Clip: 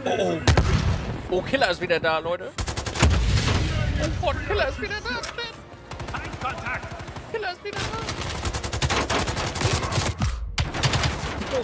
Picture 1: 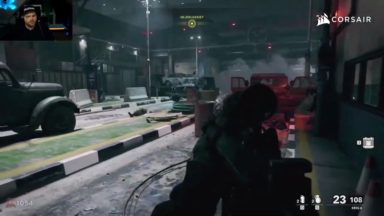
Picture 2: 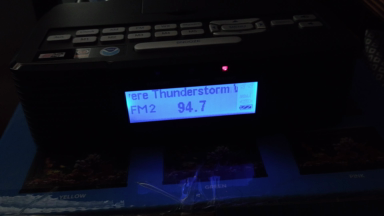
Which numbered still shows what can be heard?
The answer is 1